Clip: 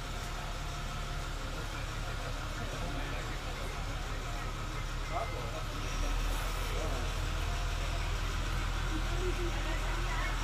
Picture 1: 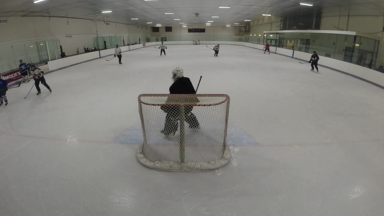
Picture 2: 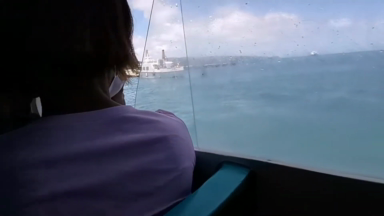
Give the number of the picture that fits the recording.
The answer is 2